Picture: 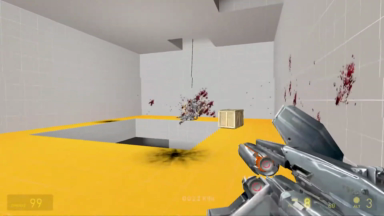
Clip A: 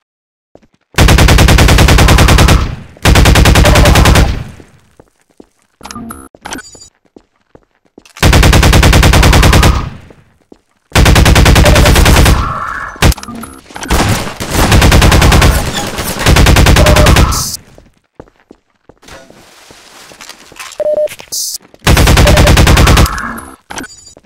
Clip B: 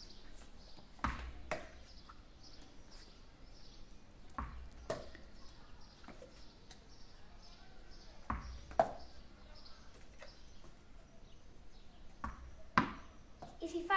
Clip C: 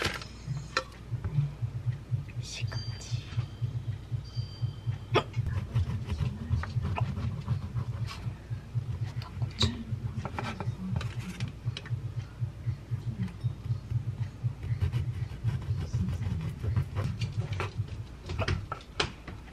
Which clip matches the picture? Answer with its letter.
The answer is A